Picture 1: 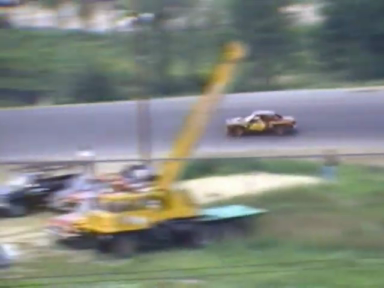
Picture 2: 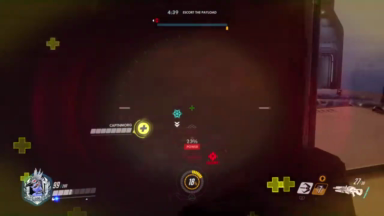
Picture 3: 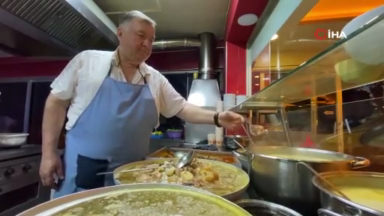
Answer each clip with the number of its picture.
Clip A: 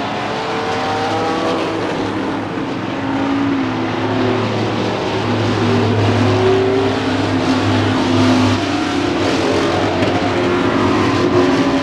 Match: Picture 1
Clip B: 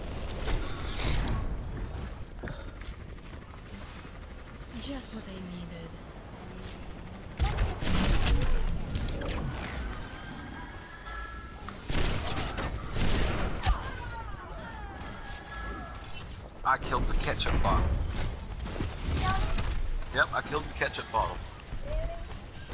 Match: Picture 2